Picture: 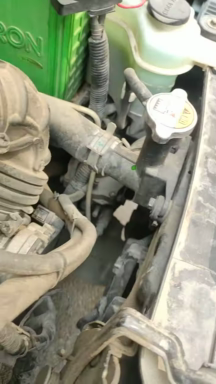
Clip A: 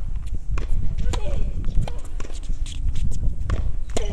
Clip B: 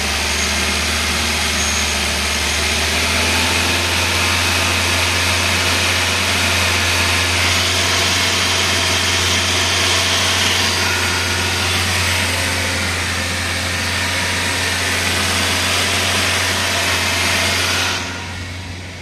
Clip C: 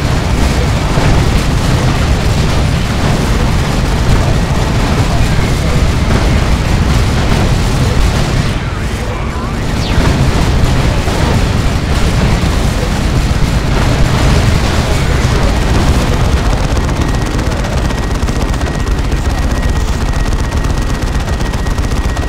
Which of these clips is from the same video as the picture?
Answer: B